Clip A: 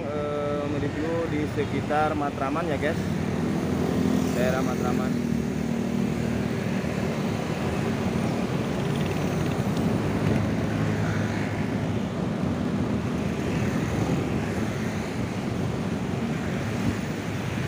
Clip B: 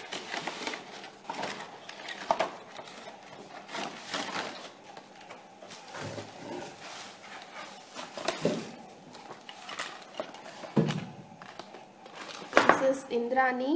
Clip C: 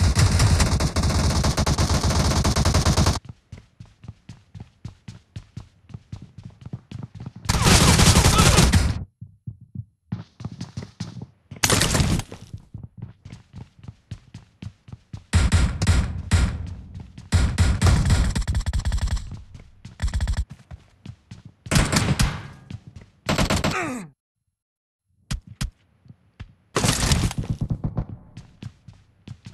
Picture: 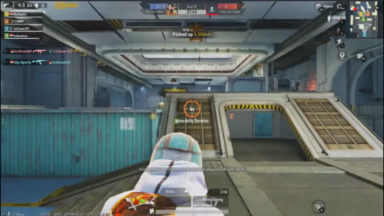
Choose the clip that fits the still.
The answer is C